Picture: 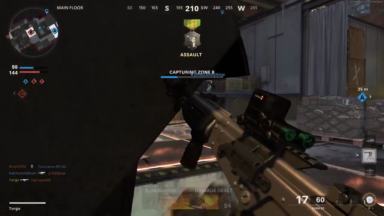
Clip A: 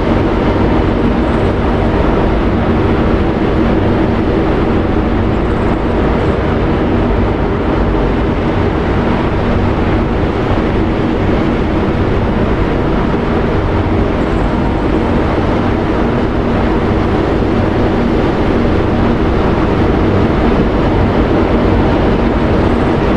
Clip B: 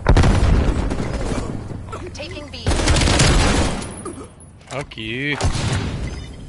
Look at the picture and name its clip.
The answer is B